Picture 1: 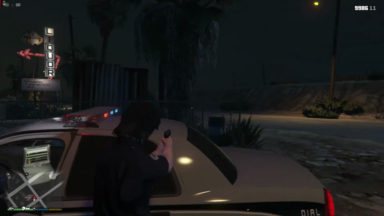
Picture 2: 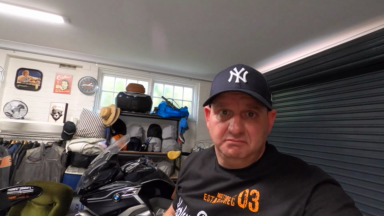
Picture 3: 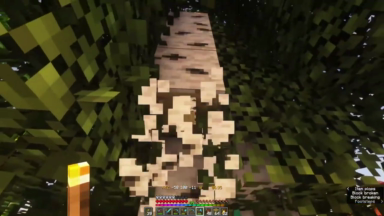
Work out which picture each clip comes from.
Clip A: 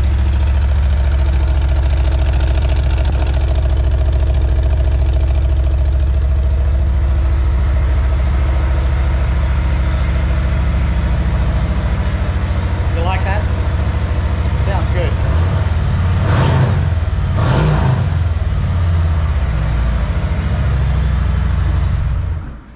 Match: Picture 2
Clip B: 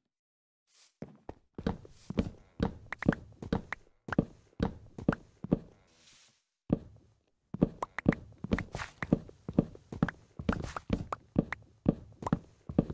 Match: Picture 3